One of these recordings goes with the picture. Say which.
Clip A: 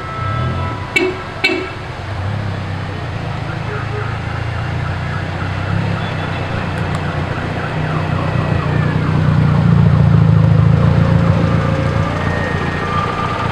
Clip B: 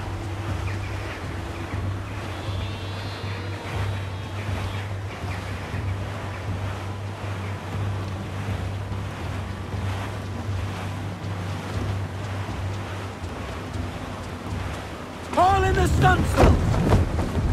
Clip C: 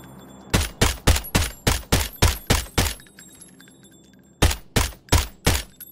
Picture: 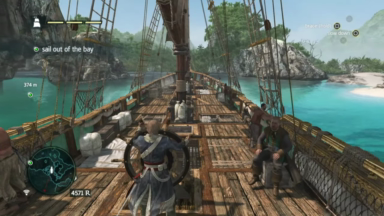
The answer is B